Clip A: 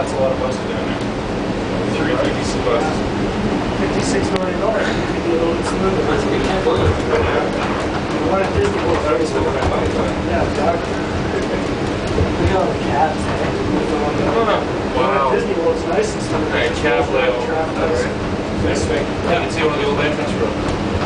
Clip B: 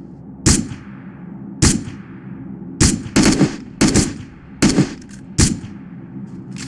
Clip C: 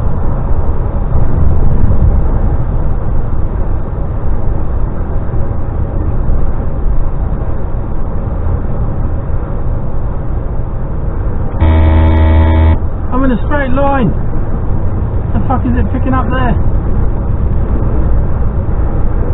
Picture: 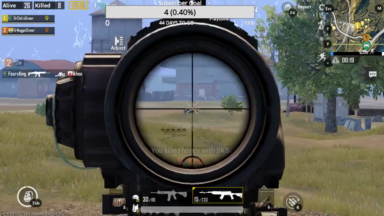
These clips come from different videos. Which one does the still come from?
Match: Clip B